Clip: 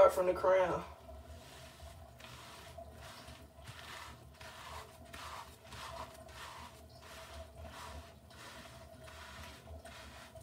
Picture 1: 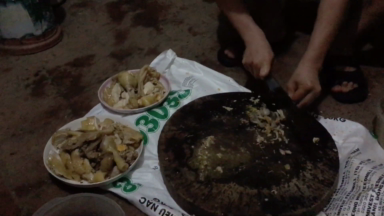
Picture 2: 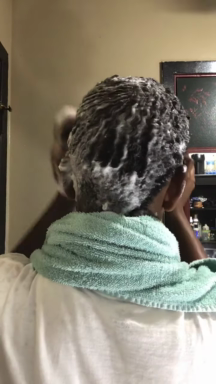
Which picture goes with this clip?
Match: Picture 2